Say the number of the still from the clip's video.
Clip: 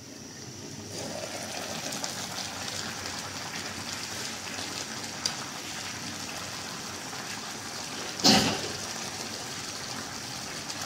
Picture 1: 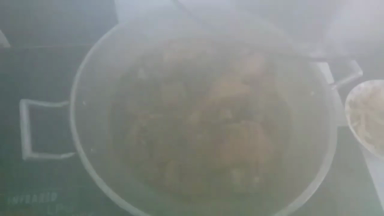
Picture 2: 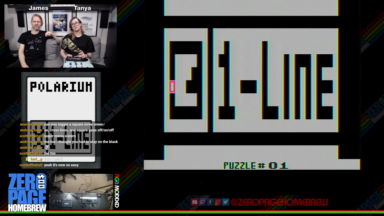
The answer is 1